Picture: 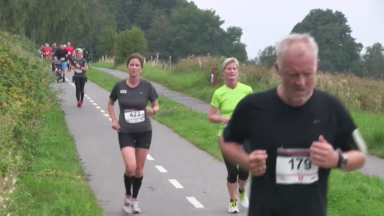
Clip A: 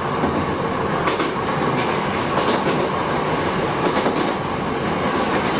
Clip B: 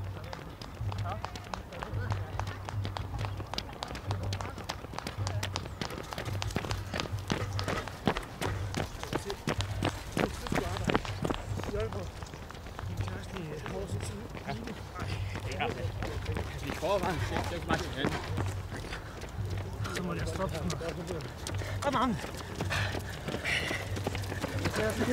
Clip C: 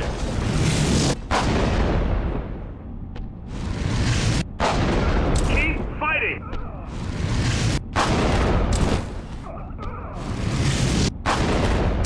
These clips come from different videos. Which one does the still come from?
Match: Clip B